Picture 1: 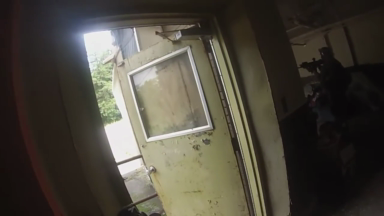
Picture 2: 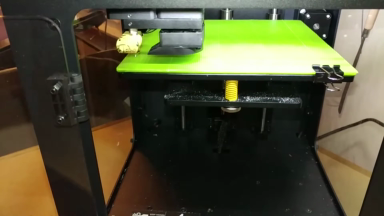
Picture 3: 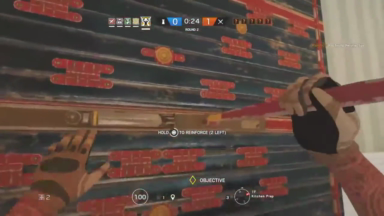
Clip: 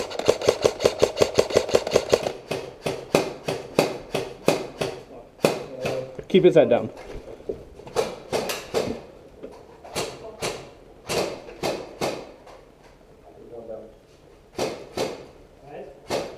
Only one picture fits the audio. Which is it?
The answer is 1